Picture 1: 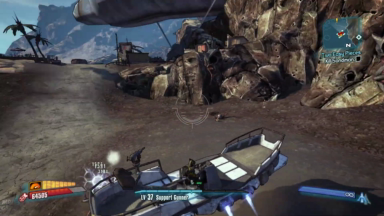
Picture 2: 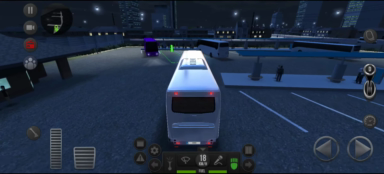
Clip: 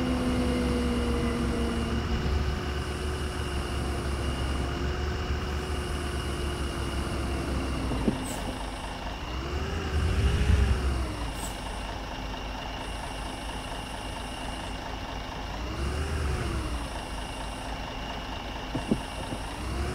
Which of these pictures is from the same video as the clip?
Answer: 2